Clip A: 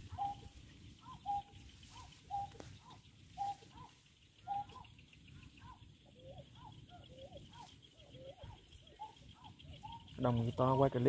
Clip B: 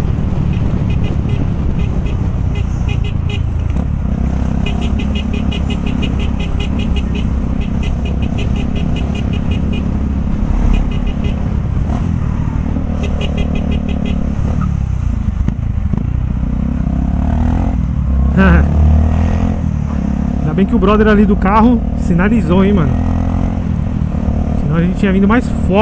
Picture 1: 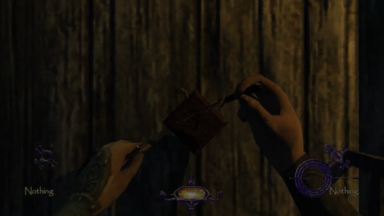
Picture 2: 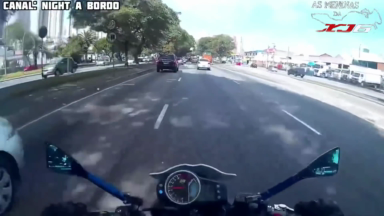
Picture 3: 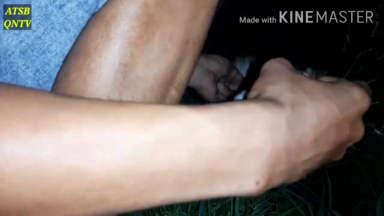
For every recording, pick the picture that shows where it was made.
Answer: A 3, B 2